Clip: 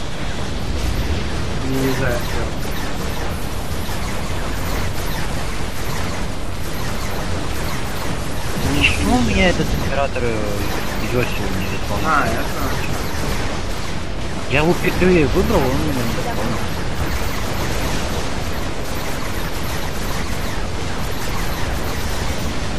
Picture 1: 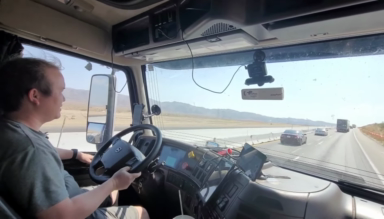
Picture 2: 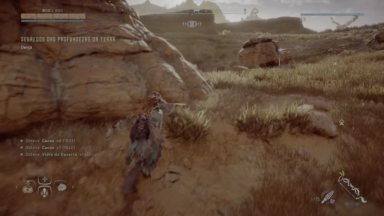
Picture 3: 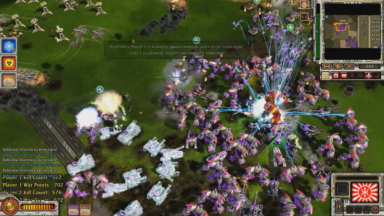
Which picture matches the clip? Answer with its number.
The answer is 3